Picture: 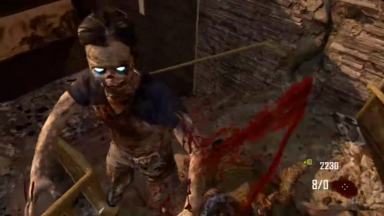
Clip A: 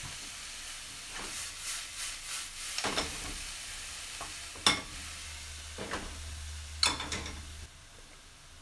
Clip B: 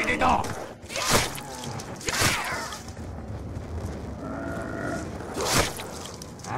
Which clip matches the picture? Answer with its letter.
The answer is B